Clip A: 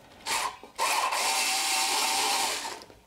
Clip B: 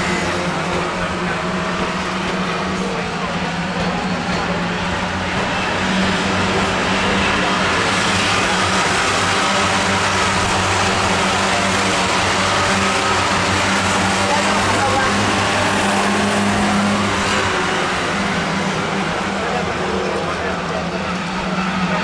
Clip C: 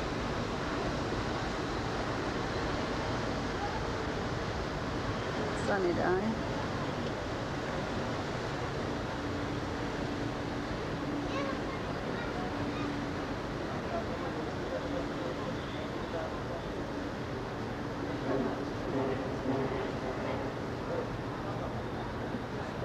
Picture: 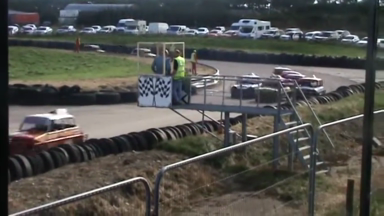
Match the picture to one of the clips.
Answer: B